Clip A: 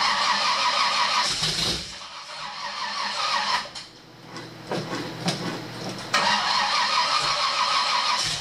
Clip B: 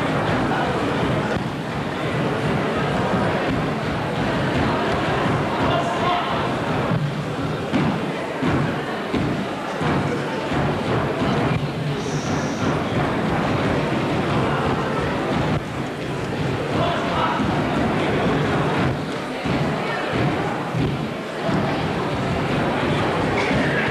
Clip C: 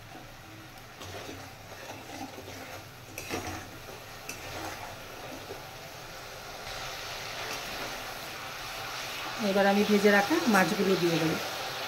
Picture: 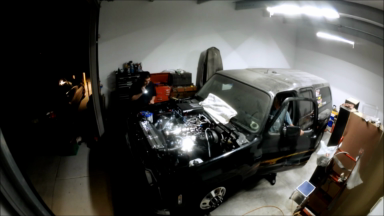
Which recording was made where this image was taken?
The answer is A